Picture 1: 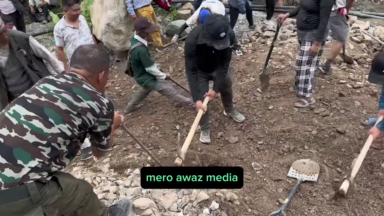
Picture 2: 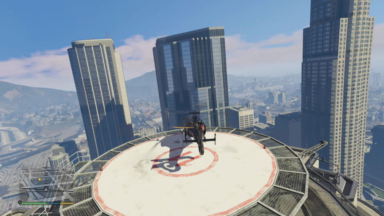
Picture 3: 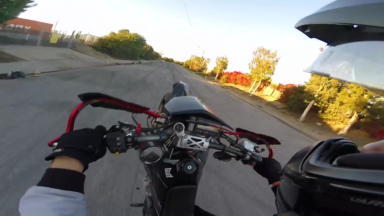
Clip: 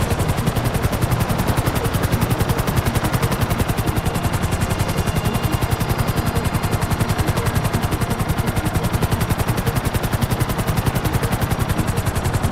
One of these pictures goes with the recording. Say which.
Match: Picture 2